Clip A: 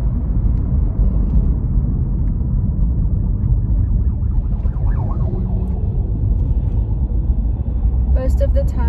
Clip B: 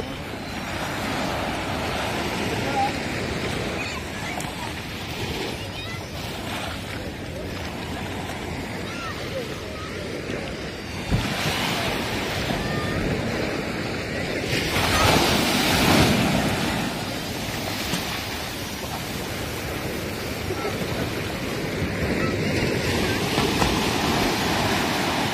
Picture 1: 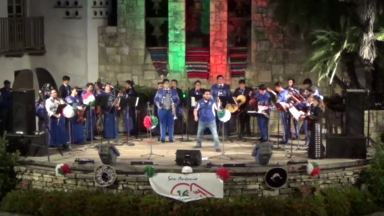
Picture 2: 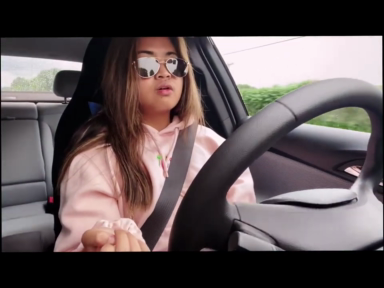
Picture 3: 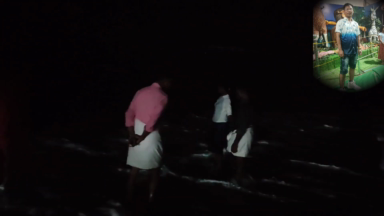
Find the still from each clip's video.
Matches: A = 2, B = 3